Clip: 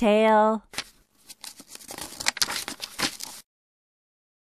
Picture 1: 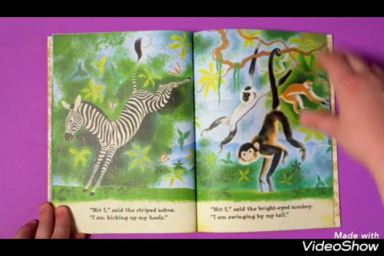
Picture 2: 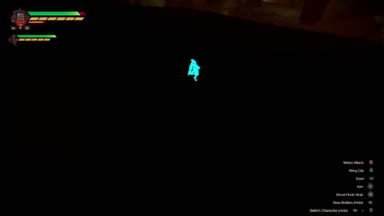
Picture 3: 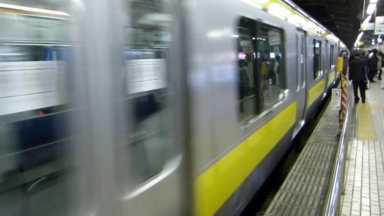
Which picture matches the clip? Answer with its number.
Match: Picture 1